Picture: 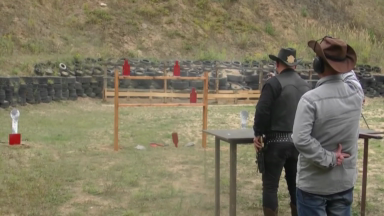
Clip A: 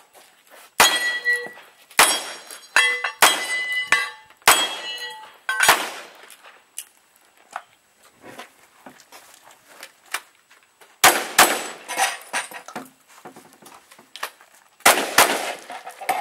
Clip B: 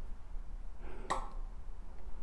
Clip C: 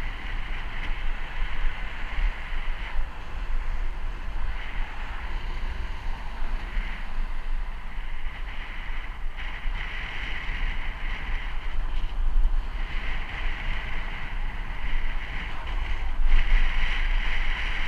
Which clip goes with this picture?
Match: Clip A